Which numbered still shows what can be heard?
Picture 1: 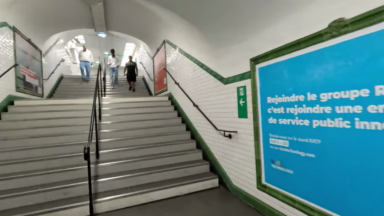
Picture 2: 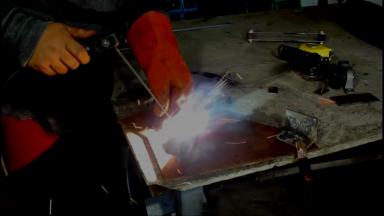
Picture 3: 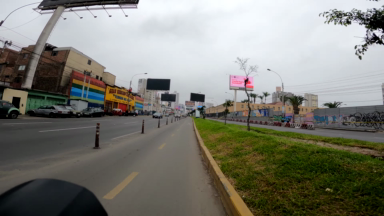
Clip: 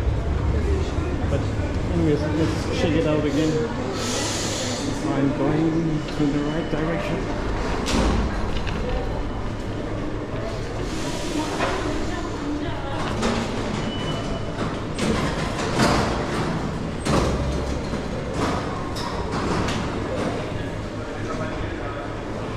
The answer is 1